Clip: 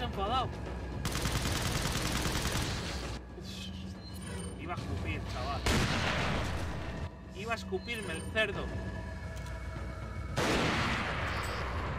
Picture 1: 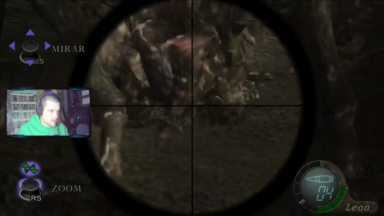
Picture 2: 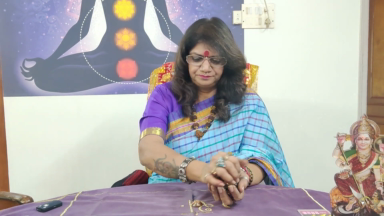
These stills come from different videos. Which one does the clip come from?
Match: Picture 1